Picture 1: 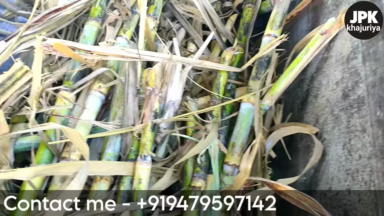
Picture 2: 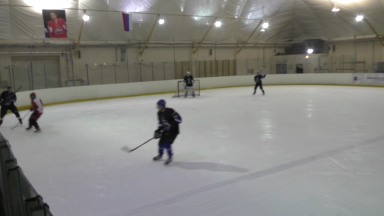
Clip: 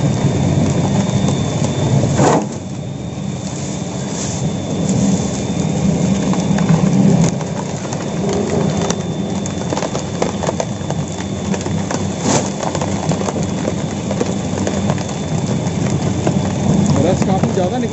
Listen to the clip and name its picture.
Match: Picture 1